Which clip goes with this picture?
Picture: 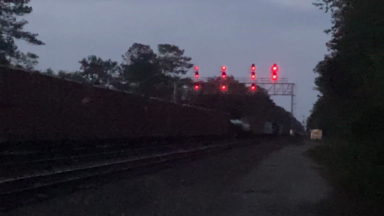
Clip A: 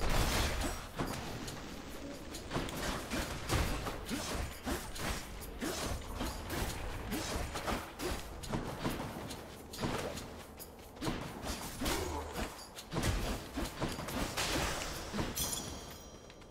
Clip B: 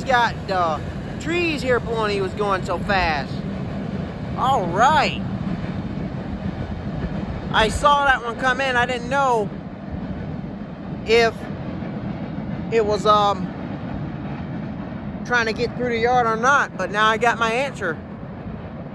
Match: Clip B